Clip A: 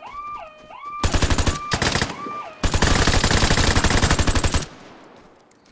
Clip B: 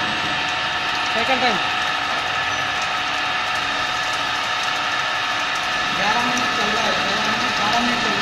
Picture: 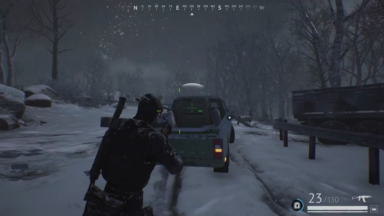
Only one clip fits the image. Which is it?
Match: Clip A